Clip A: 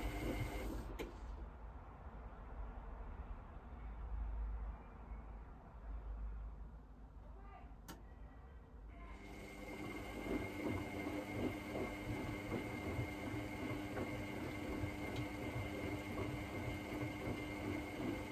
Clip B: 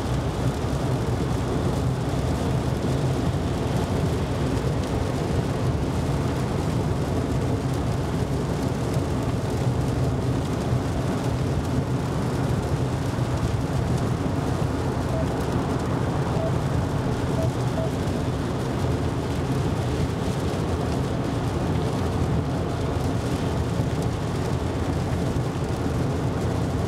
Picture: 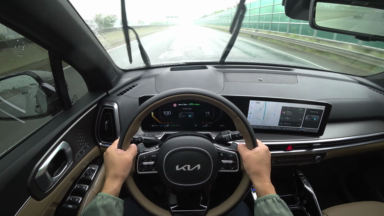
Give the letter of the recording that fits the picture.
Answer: B